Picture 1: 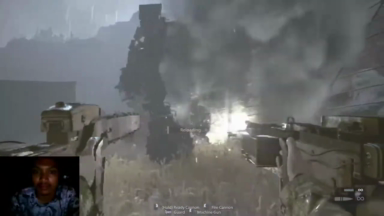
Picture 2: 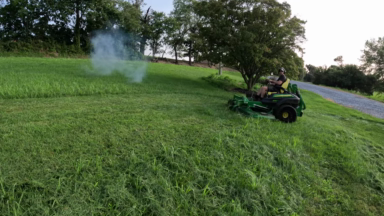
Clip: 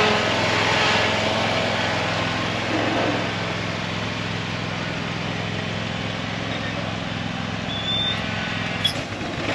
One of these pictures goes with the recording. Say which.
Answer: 2